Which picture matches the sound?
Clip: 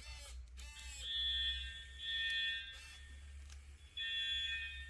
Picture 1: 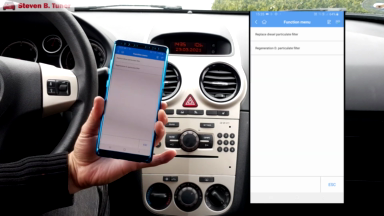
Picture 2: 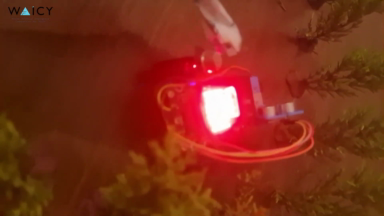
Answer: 2